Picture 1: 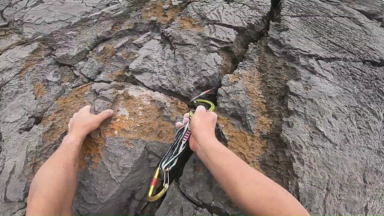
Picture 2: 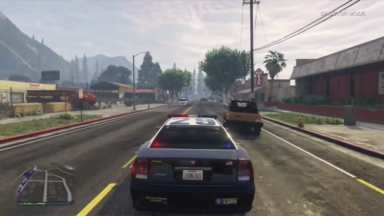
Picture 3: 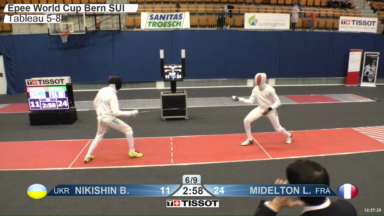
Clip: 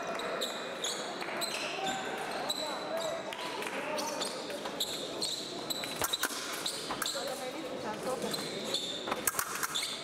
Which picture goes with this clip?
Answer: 3